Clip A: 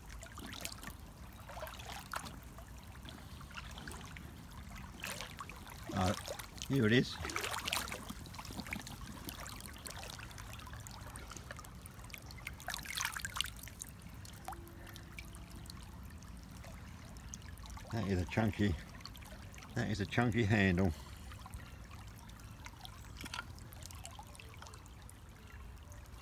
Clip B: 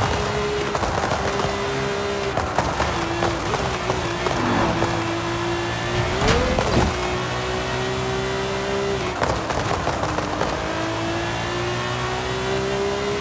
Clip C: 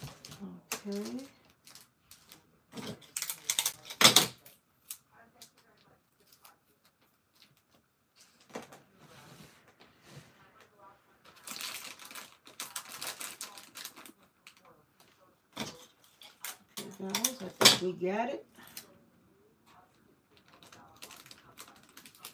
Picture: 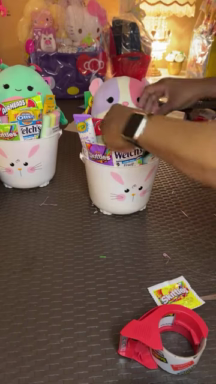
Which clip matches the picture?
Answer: C